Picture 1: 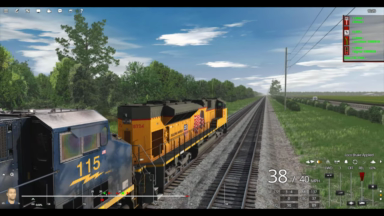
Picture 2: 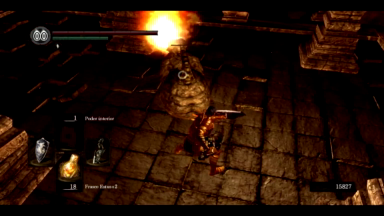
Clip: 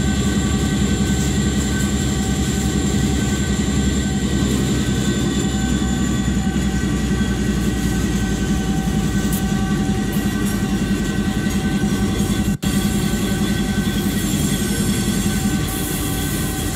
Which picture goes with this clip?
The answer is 1